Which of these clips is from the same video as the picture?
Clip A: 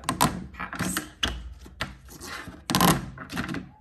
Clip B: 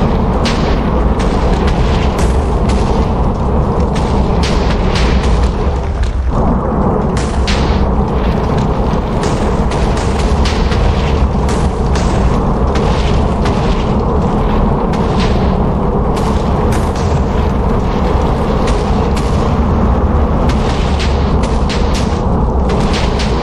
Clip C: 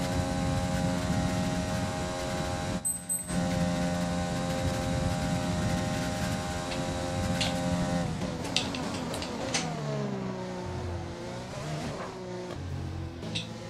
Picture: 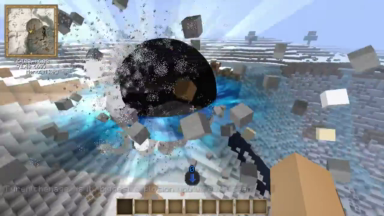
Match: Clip B